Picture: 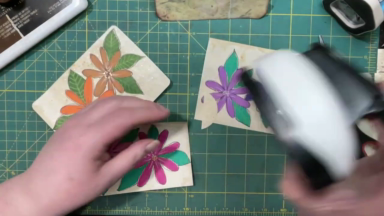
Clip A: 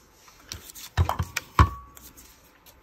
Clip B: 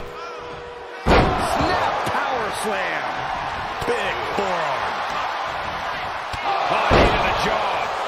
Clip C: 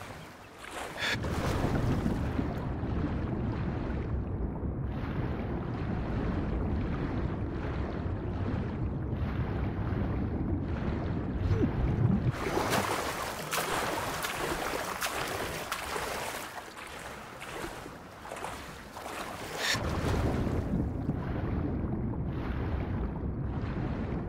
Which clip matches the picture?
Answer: A